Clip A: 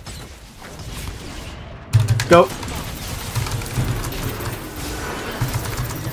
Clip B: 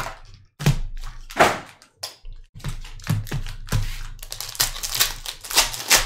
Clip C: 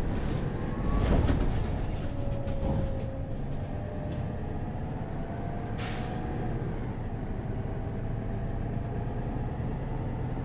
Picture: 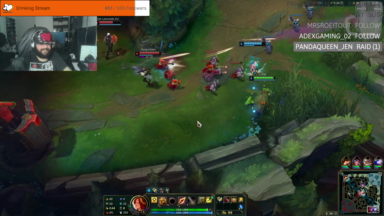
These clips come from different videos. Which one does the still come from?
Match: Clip A